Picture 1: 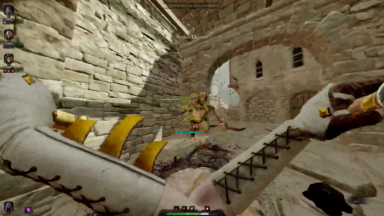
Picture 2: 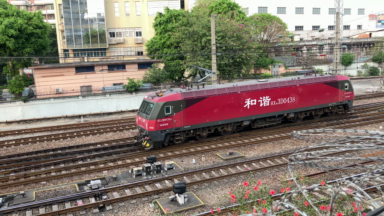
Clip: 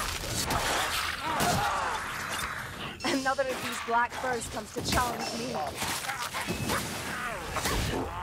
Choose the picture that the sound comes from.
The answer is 1